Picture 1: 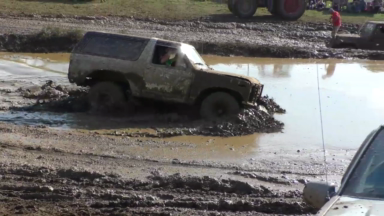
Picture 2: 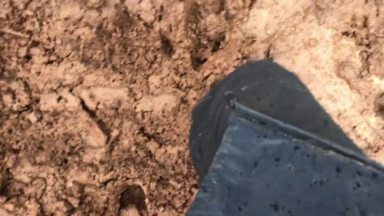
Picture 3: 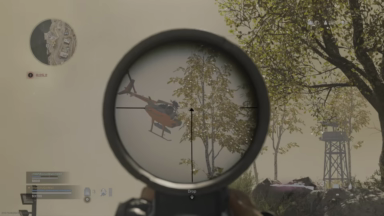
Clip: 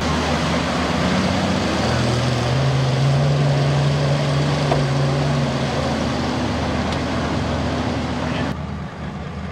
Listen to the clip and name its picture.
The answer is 1